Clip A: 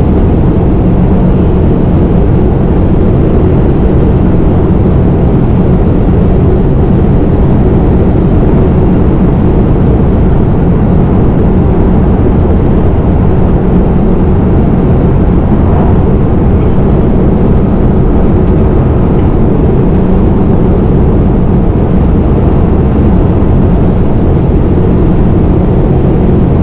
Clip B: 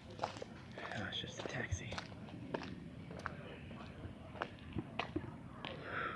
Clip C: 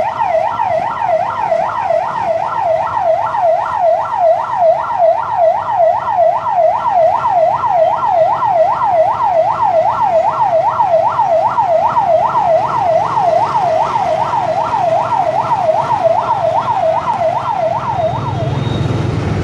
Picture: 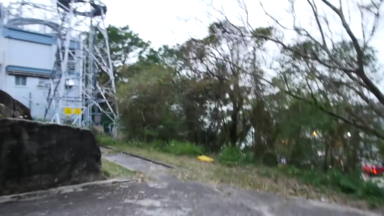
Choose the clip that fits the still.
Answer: B